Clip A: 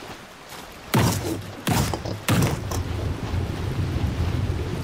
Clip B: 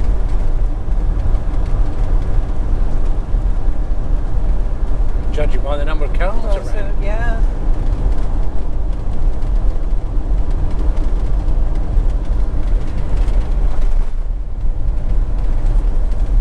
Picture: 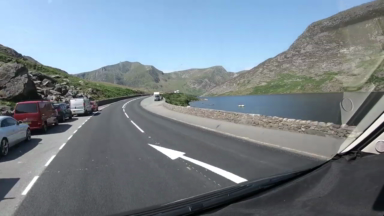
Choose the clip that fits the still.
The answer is B